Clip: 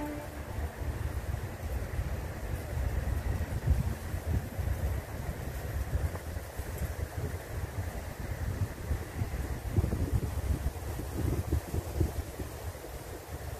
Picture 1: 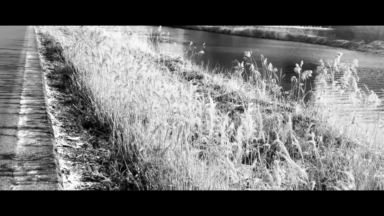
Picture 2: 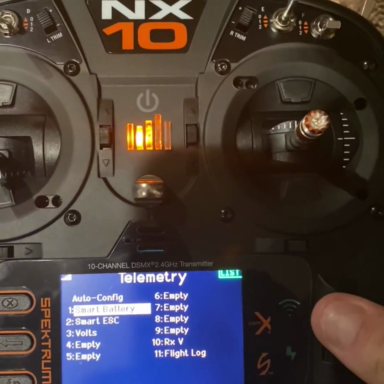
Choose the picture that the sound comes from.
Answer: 1